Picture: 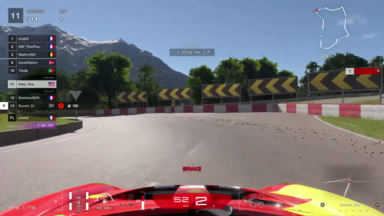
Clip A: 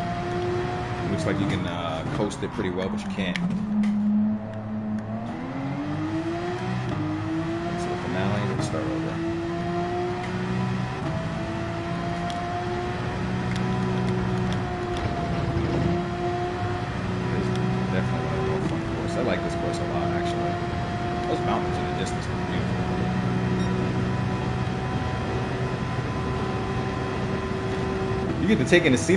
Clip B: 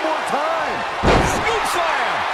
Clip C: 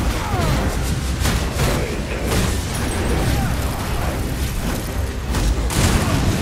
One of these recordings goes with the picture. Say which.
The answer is A